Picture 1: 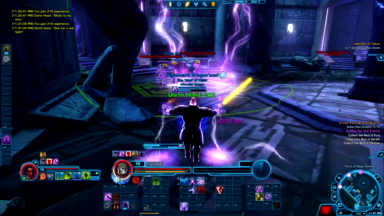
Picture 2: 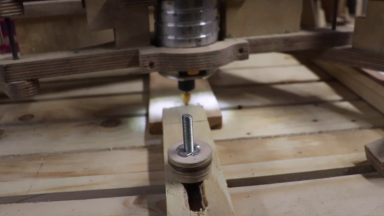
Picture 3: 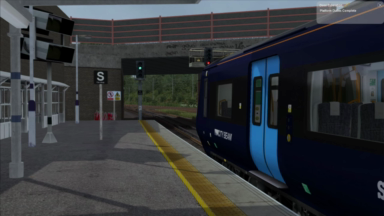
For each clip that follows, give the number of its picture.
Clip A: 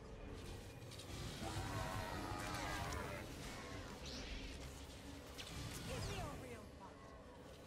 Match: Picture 1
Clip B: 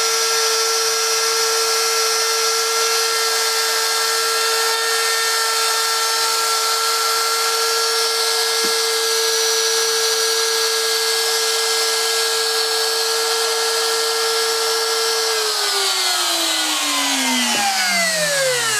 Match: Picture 2